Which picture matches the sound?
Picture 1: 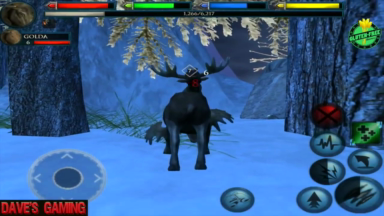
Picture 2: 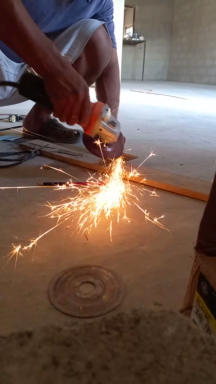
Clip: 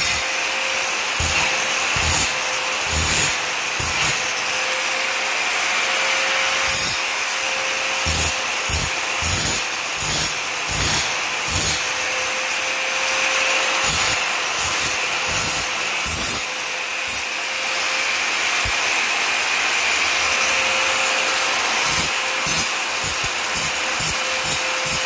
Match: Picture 2